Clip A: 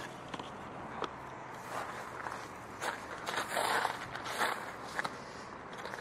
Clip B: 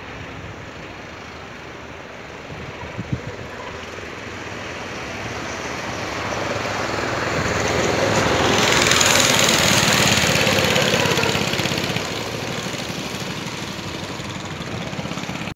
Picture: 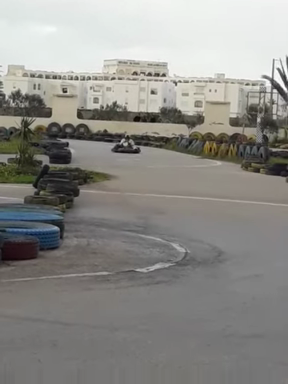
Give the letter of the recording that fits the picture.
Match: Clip B